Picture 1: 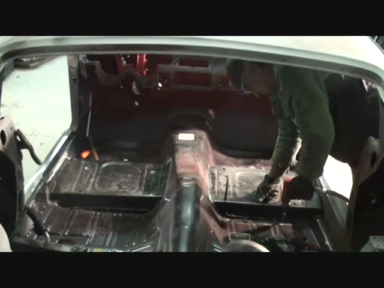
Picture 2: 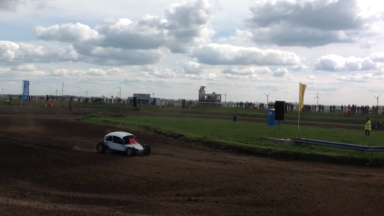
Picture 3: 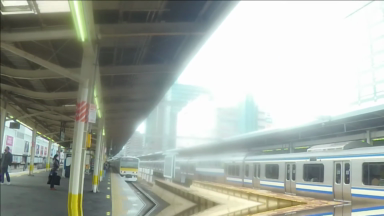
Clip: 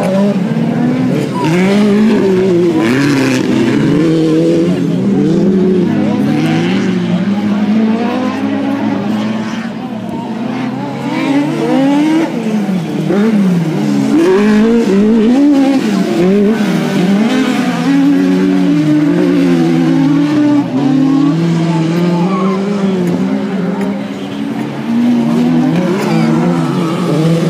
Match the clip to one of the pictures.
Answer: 2